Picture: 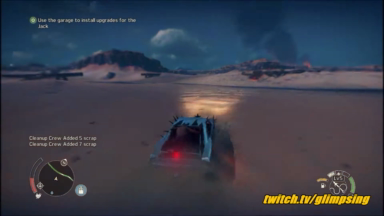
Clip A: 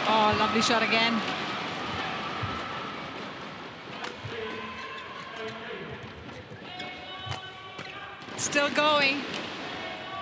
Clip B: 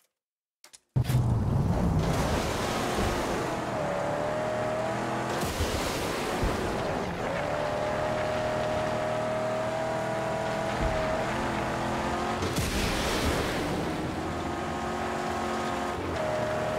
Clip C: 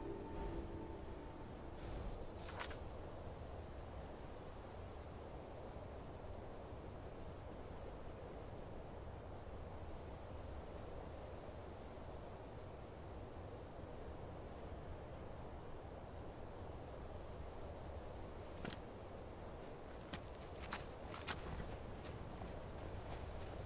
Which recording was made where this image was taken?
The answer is B